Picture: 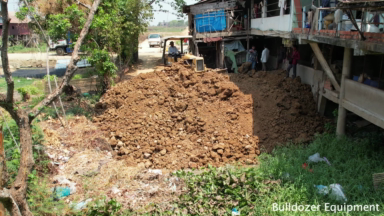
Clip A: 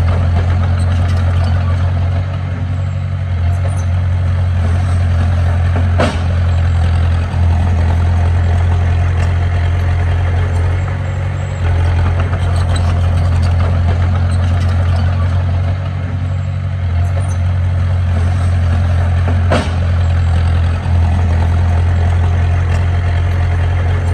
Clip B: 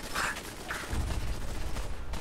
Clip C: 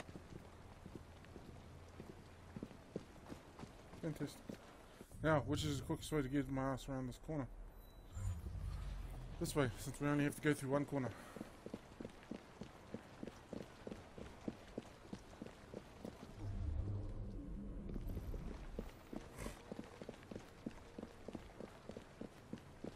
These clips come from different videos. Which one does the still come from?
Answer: A